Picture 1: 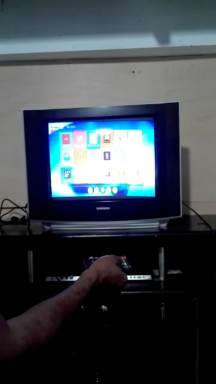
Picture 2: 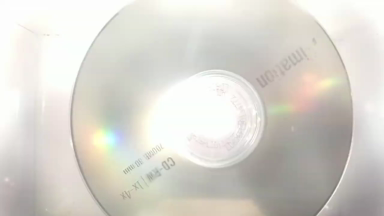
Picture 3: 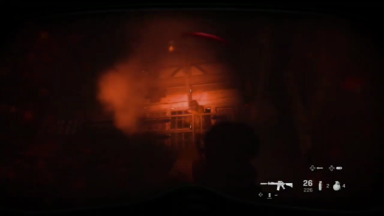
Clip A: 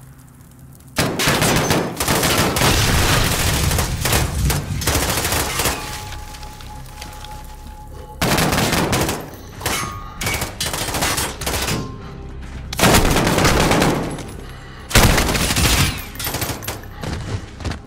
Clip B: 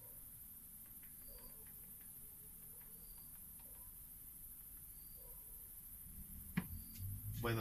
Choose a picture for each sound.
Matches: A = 3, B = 1